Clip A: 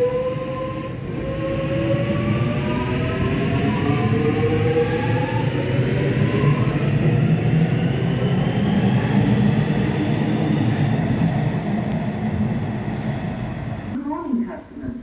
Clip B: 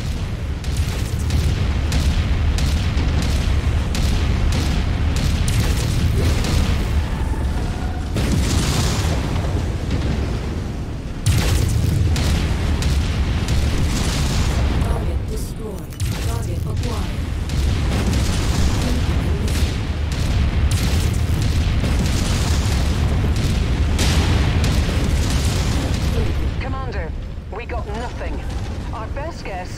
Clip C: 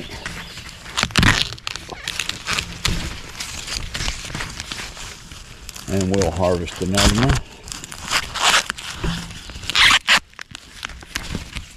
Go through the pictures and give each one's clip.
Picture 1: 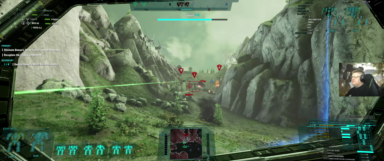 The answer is B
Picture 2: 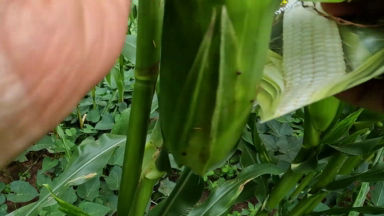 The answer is C